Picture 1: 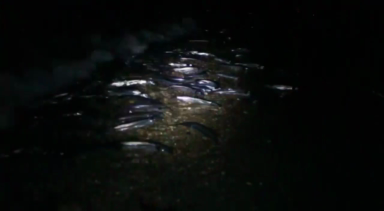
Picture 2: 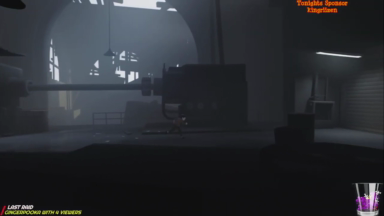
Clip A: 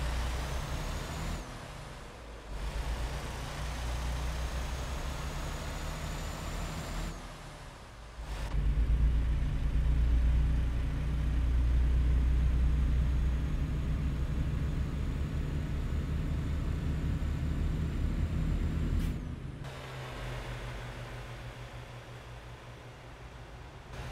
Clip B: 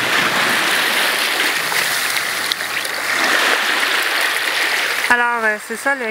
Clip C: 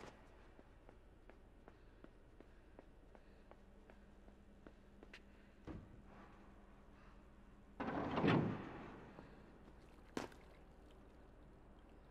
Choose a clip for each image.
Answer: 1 B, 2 C